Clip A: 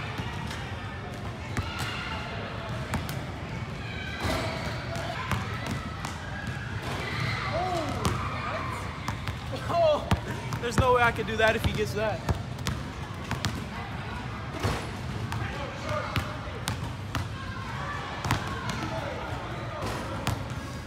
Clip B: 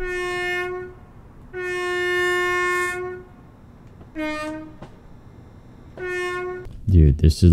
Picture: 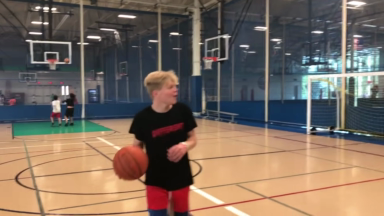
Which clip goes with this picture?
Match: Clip A